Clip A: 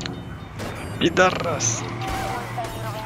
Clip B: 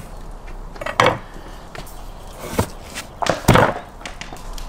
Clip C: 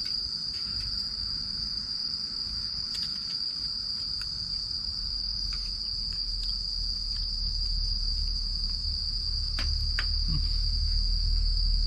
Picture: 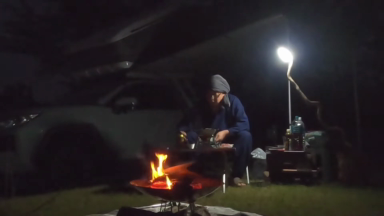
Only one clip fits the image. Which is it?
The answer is C